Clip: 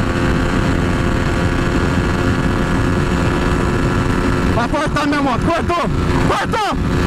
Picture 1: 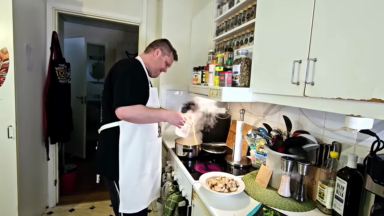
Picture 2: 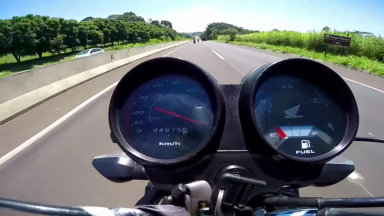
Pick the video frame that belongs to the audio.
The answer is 2